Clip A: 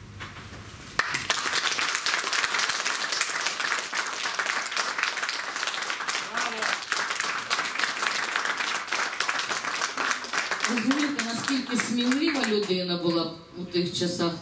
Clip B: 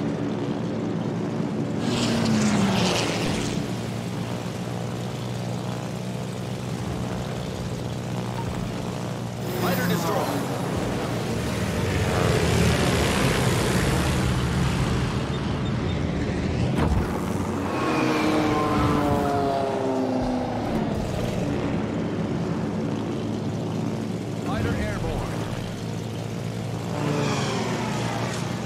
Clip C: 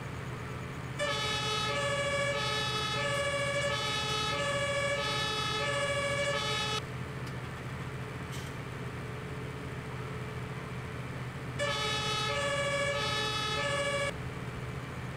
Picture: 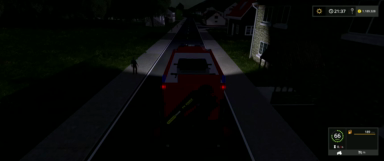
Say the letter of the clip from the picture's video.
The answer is C